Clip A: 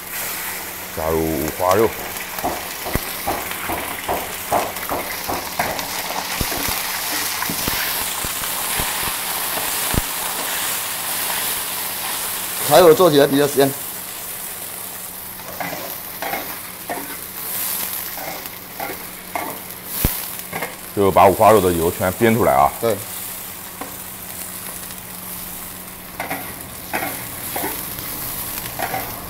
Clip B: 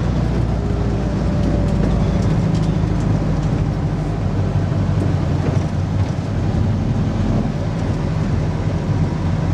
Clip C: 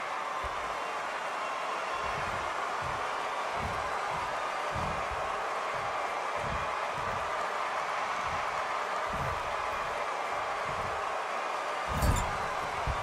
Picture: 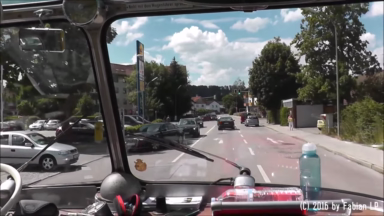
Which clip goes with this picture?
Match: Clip B